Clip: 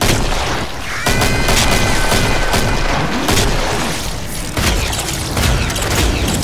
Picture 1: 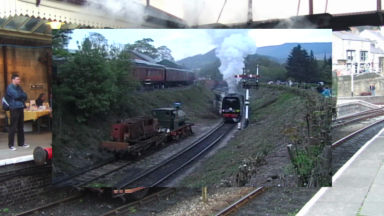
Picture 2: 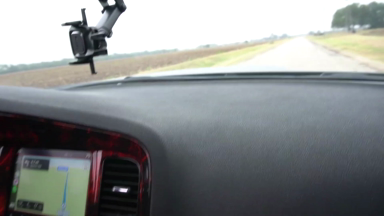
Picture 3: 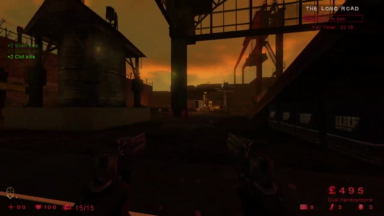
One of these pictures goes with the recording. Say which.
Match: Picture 3